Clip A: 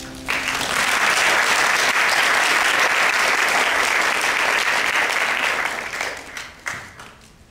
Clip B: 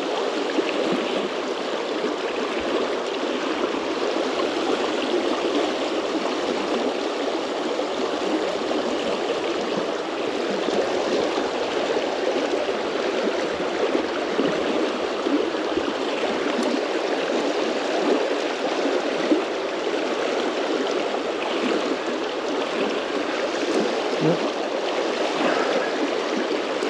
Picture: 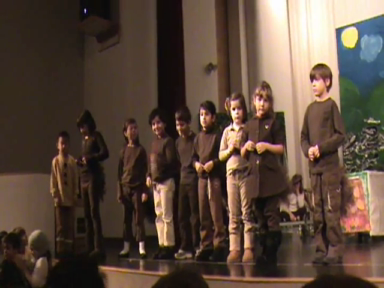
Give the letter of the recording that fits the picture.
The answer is A